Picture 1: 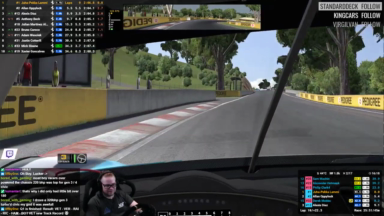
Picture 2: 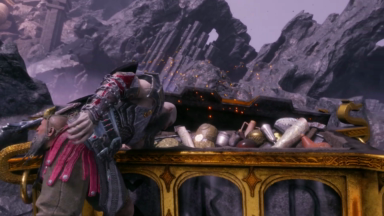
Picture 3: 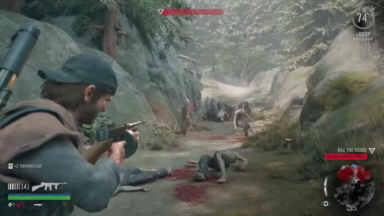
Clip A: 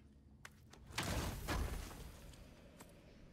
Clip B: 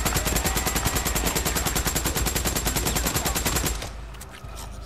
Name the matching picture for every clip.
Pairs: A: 2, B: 3